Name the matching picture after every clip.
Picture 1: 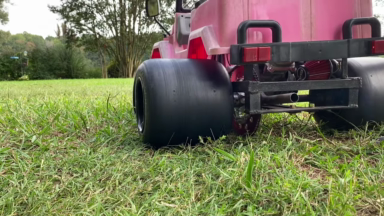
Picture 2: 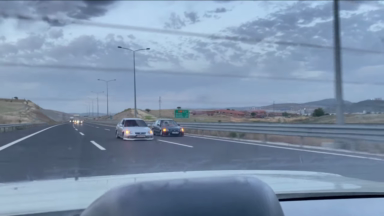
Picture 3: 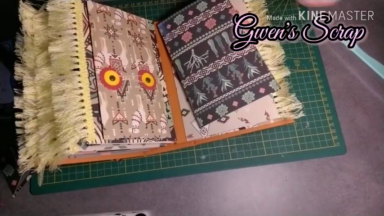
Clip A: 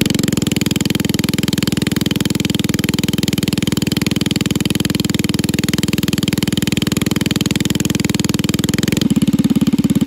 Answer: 1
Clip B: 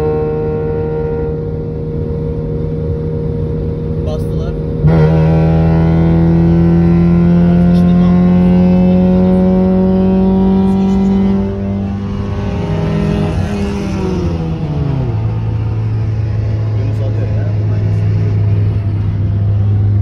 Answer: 2